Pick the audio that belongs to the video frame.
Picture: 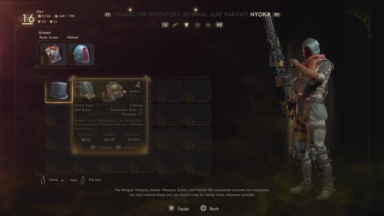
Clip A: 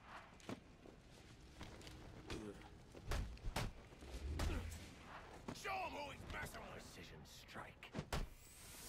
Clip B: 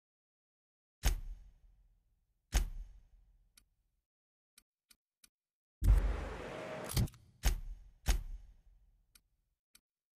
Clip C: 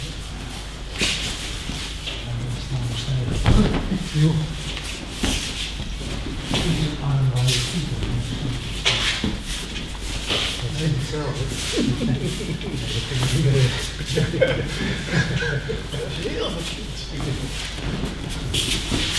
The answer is B